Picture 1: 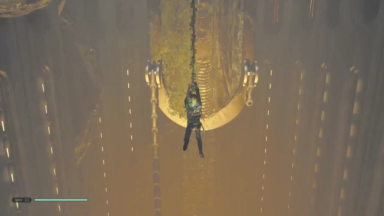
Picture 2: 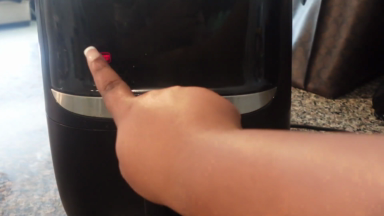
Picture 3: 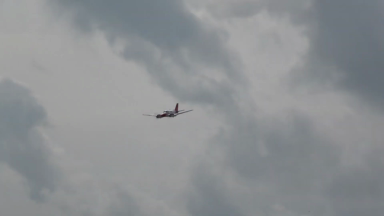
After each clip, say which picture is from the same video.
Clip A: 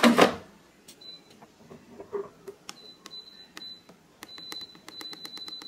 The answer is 2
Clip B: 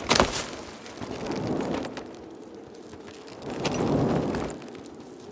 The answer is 1